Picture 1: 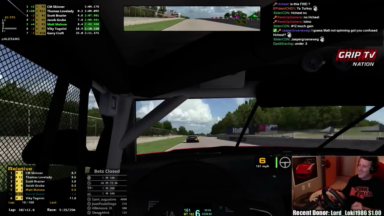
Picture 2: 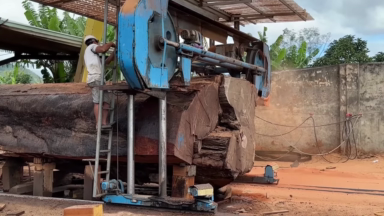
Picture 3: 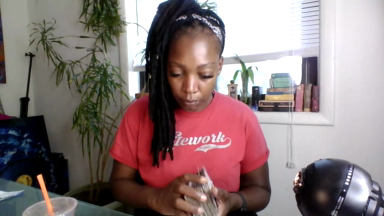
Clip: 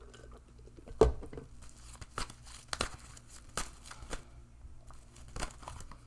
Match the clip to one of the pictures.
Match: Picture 3